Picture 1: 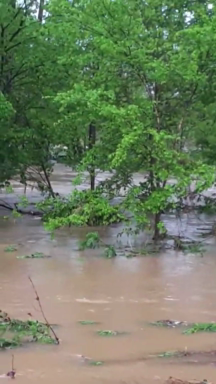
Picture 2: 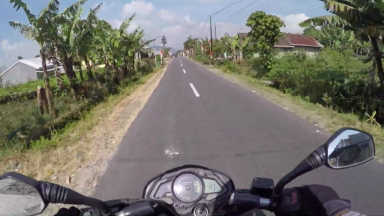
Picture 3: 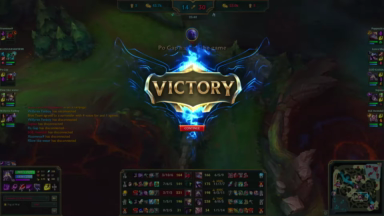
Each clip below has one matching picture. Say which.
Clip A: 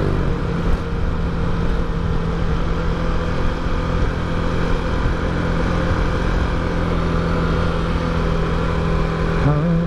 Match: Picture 2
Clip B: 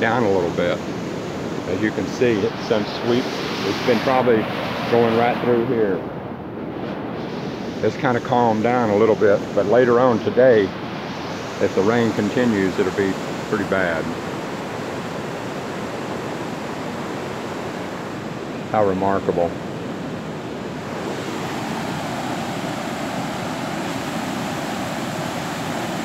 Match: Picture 1